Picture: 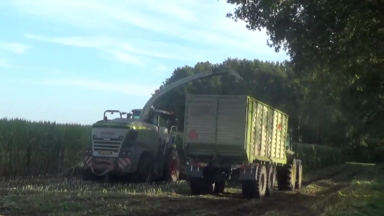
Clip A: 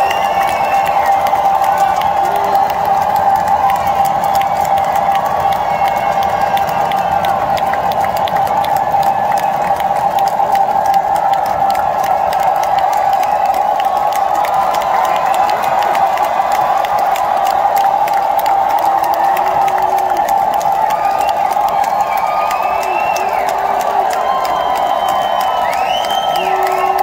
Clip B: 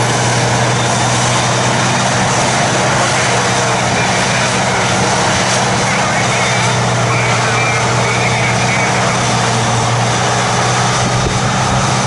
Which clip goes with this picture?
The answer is B